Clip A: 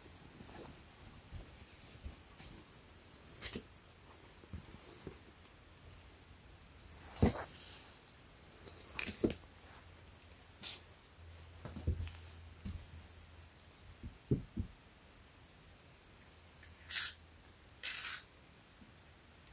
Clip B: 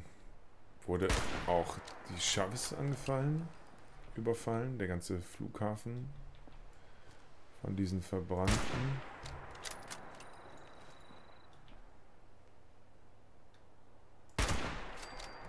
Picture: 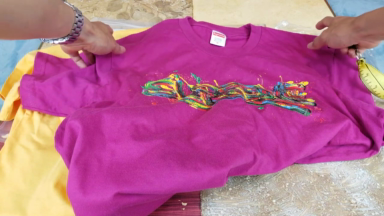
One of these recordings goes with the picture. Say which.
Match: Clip A